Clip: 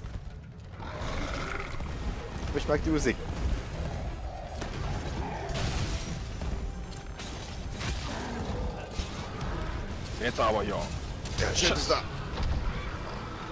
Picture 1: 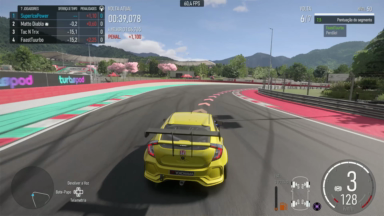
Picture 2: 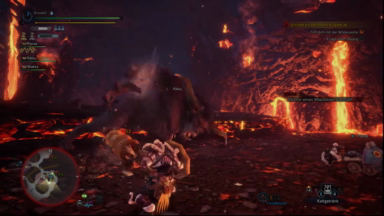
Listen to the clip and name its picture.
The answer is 2